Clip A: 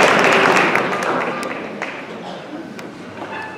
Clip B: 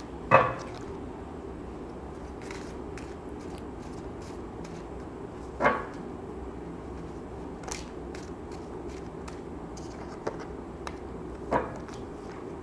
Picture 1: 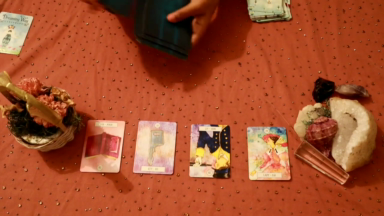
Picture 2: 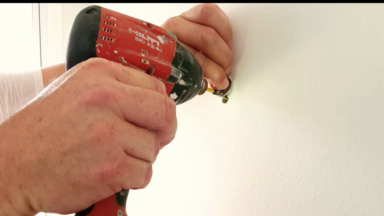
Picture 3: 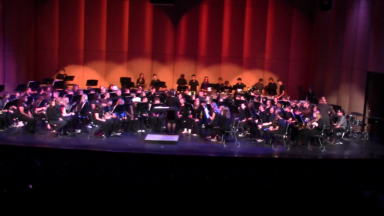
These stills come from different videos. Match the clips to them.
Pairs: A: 3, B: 1